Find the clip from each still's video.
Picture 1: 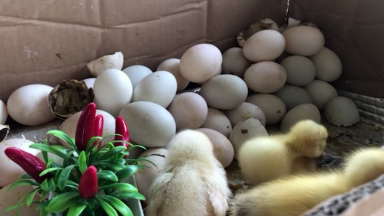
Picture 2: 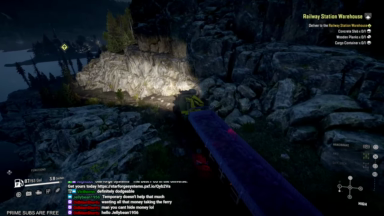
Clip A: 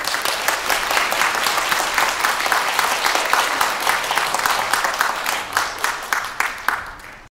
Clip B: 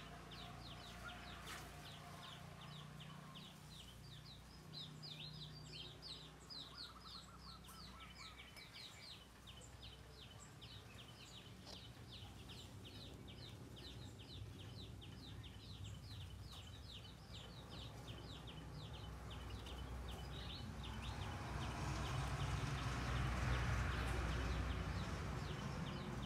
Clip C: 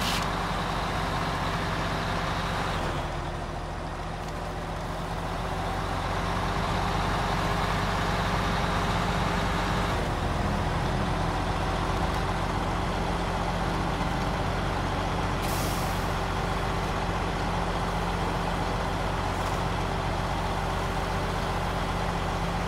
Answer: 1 B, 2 C